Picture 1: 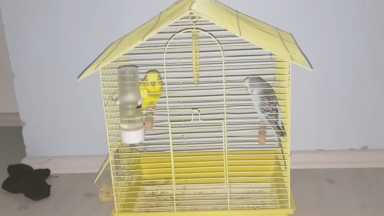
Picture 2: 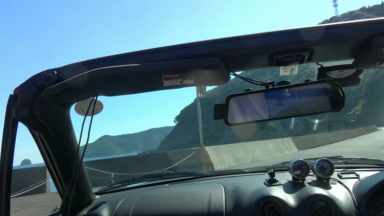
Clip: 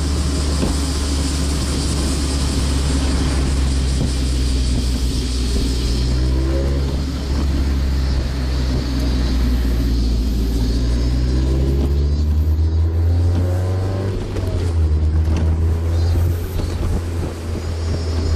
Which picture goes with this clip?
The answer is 2